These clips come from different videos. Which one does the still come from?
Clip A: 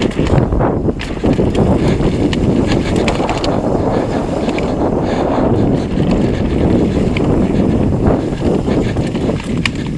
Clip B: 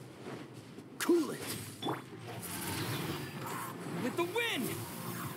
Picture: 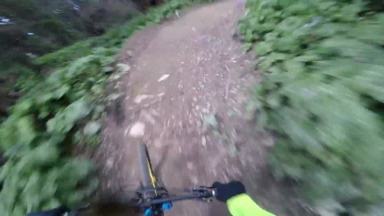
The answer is A